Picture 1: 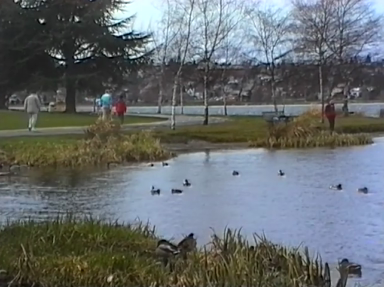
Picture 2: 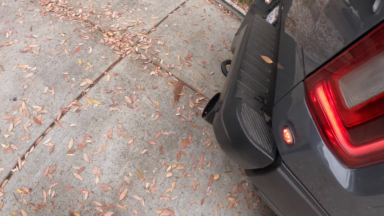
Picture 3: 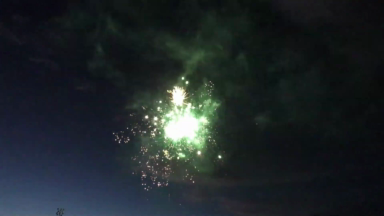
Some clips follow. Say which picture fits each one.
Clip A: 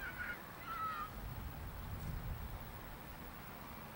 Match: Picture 1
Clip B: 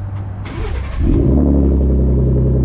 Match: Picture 2